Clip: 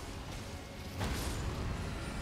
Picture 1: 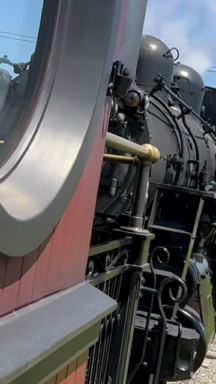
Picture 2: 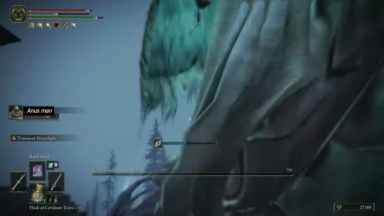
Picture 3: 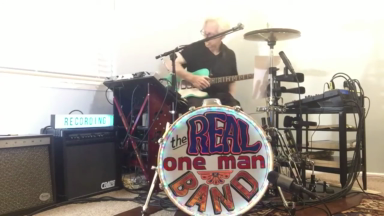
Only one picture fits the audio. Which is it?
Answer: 2